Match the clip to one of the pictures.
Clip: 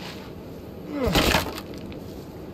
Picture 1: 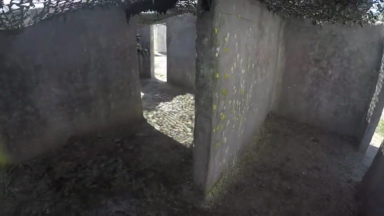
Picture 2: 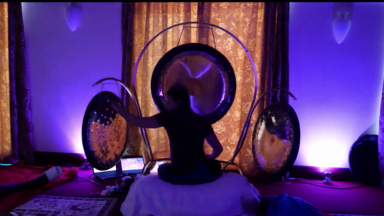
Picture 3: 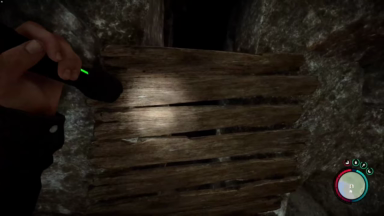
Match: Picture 3